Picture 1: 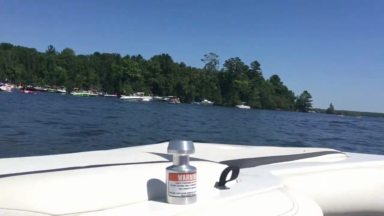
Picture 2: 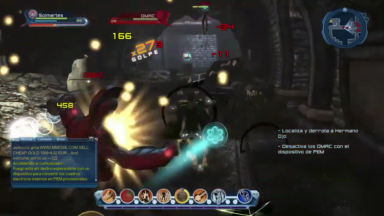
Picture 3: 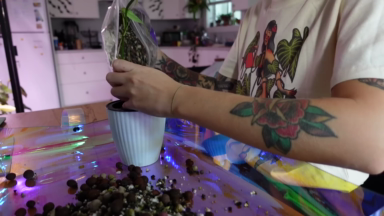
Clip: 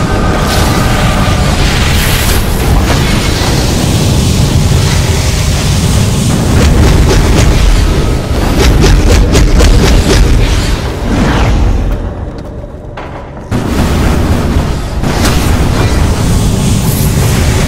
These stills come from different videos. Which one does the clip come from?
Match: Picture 2